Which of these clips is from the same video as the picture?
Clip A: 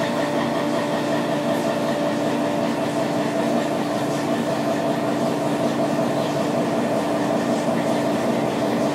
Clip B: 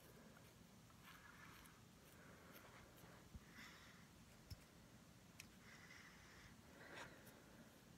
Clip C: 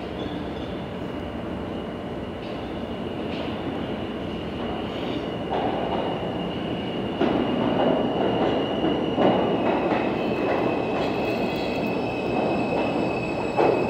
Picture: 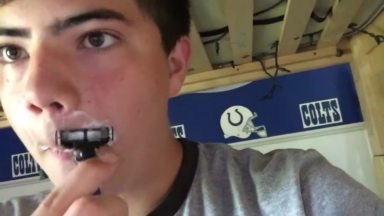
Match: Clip B